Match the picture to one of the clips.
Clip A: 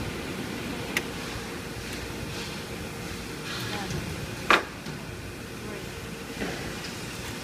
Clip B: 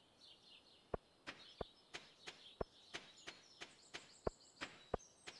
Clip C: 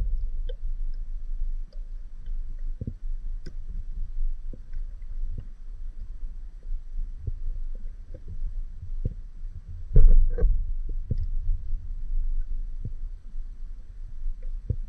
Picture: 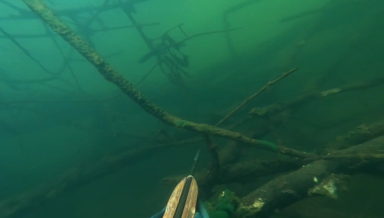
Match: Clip C